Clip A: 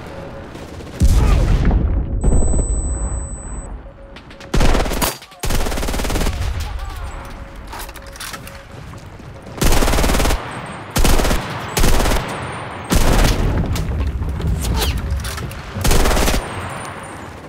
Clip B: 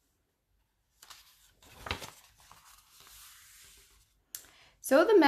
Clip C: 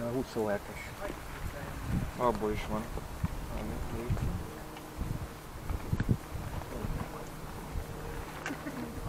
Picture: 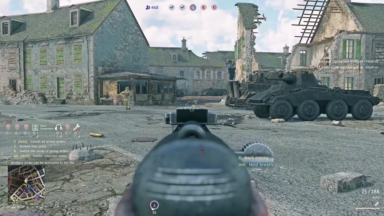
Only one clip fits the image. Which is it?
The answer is A